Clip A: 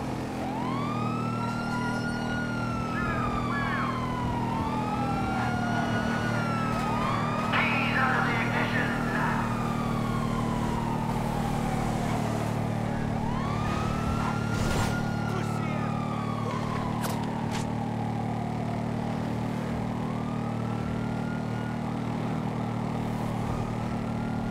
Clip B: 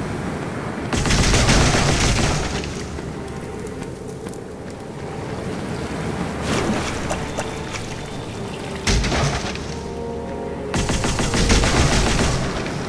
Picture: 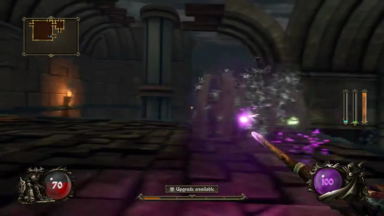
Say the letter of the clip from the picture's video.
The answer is B